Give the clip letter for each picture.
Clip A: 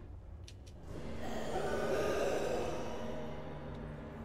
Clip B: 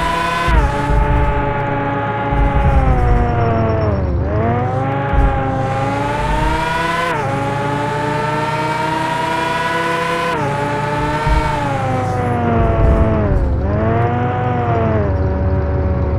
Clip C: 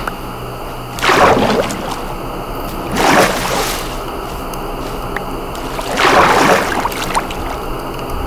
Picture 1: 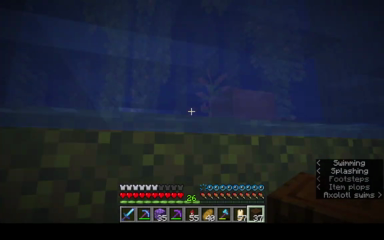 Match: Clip C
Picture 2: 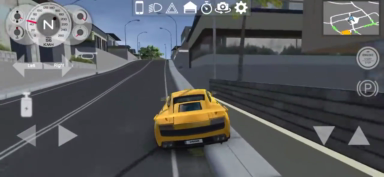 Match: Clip B